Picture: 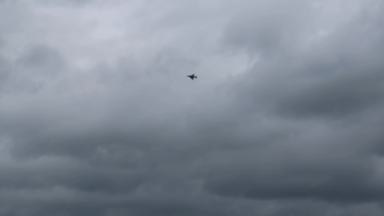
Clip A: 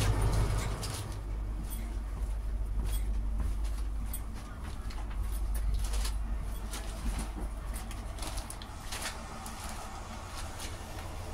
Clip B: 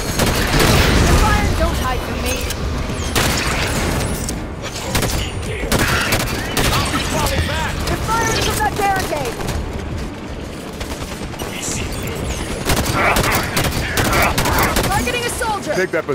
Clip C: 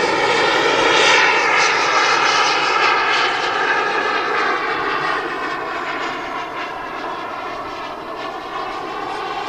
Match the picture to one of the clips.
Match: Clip C